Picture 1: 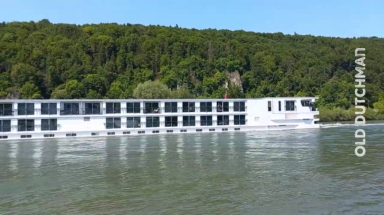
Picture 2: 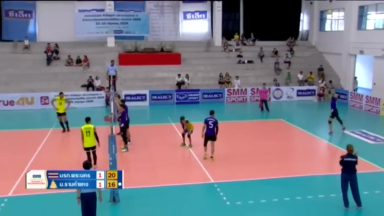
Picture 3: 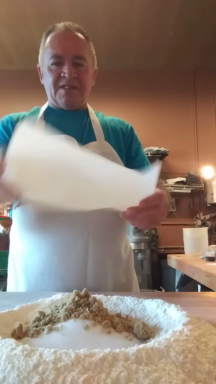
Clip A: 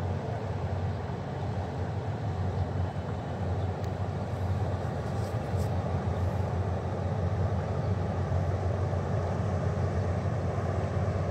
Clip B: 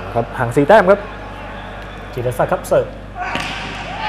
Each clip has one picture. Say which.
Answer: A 1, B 2